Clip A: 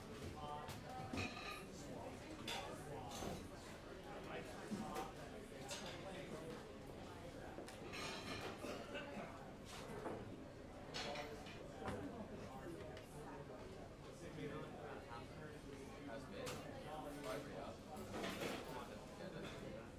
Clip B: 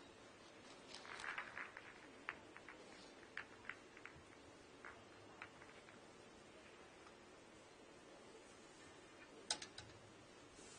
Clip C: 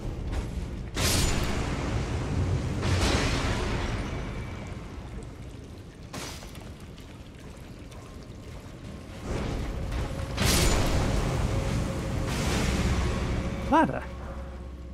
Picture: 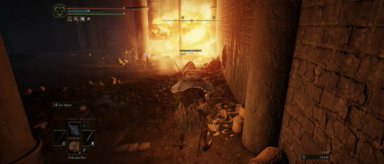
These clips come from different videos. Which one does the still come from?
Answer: C